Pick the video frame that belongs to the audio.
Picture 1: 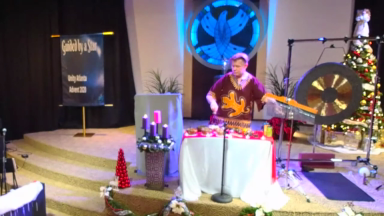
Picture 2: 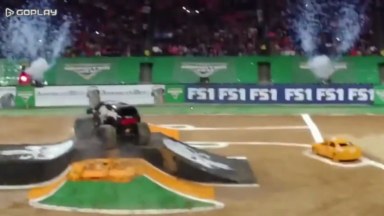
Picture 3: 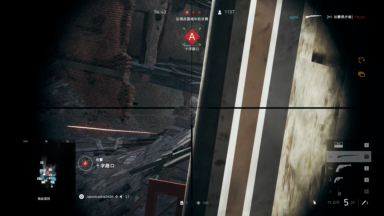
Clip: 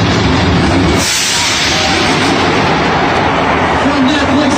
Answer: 2